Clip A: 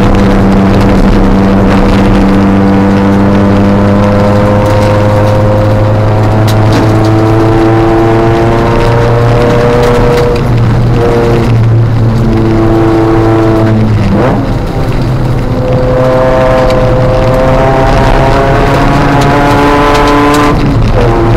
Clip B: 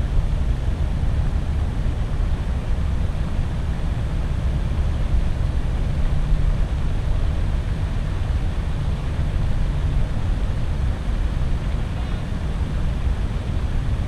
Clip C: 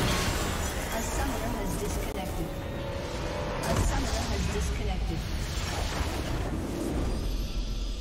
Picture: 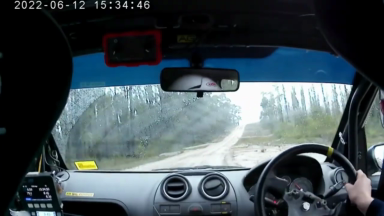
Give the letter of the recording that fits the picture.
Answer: A